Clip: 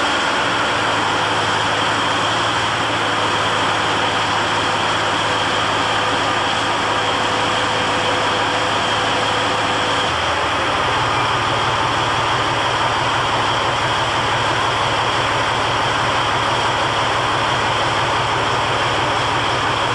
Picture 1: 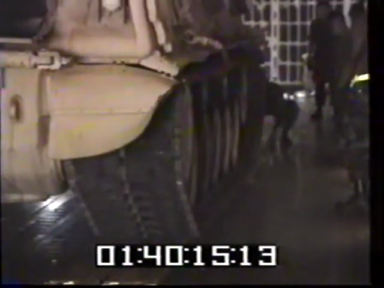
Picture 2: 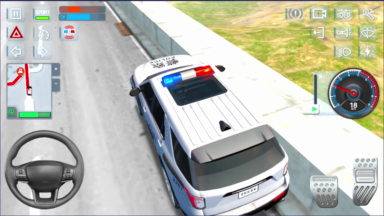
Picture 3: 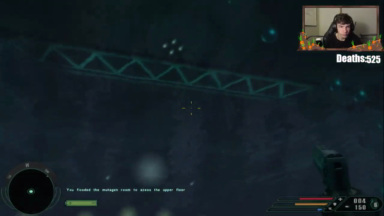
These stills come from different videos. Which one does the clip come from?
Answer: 1